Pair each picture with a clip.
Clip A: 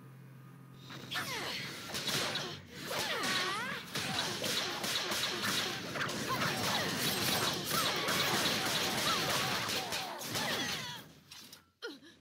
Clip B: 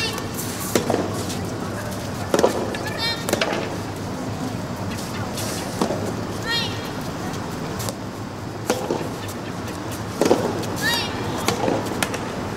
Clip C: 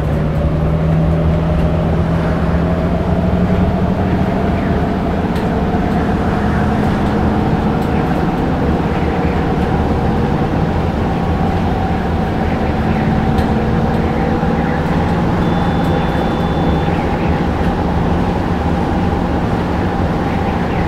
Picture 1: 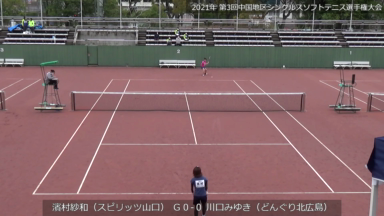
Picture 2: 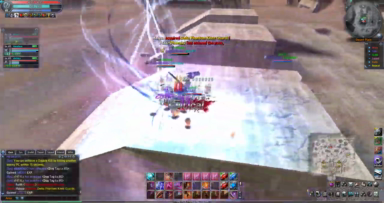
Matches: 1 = B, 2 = A